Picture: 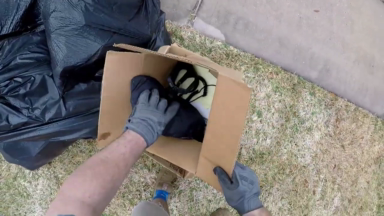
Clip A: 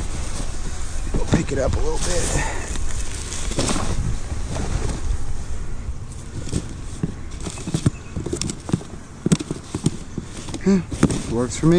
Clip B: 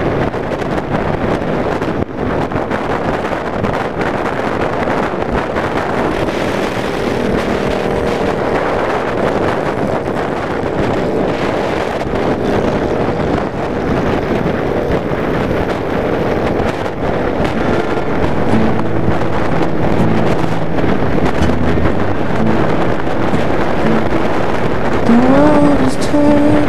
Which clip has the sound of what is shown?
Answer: A